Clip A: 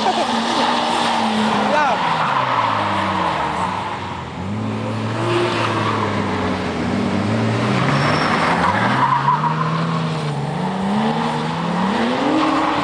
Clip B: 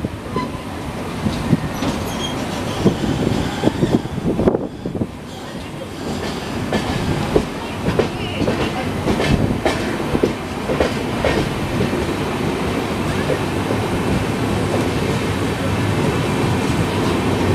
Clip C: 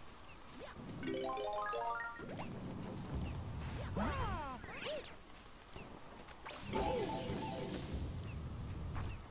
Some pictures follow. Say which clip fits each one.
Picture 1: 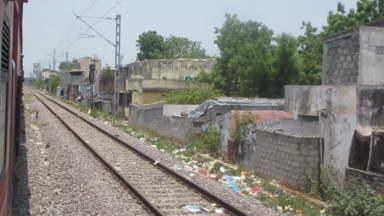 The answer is B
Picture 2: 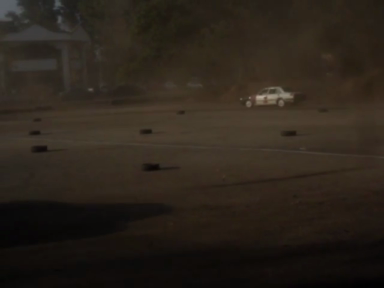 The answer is A